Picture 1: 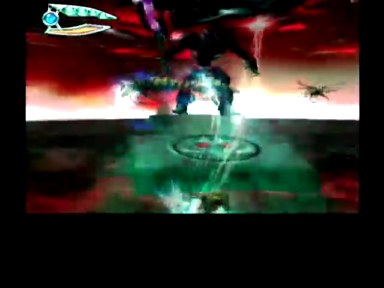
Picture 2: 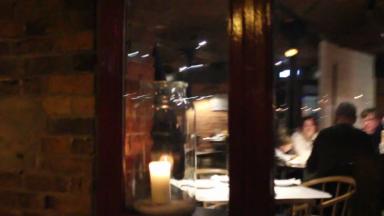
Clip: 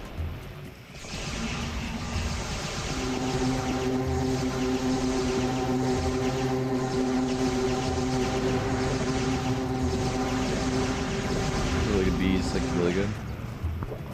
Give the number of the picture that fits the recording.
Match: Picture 1